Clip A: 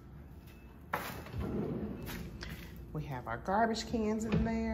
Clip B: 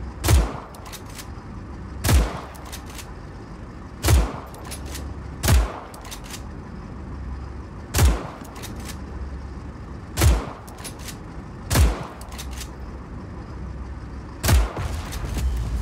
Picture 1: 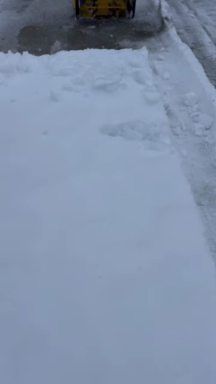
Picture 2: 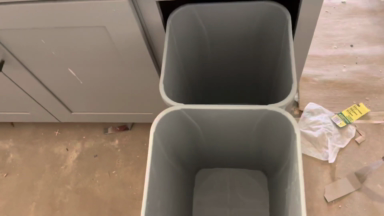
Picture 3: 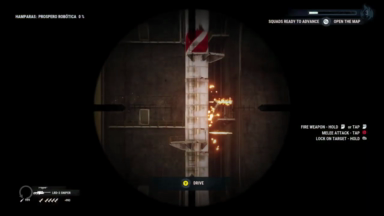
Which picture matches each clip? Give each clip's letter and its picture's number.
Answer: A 2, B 3